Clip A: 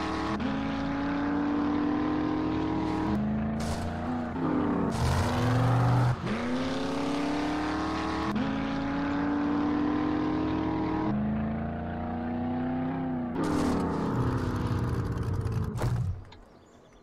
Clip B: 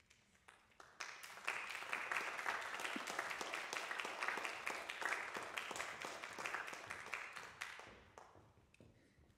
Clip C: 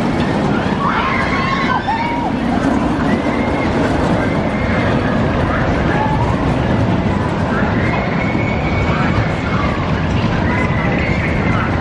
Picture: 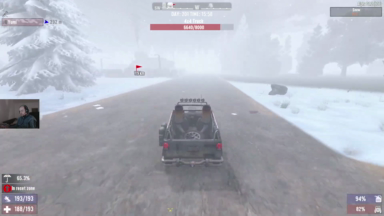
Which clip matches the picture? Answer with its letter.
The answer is A